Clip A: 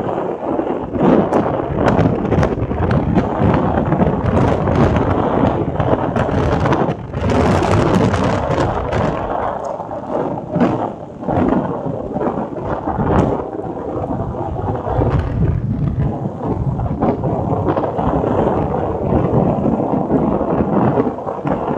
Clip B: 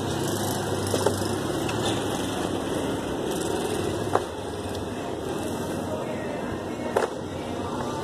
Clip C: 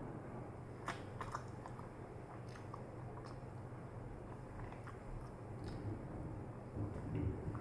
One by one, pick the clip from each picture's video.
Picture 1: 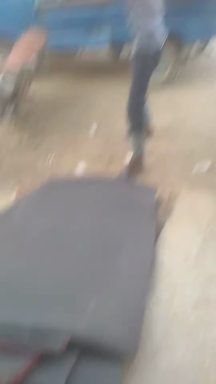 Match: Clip B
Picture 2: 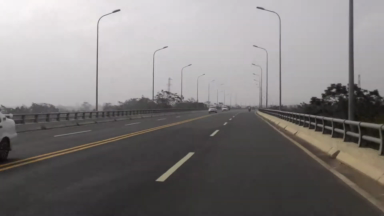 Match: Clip A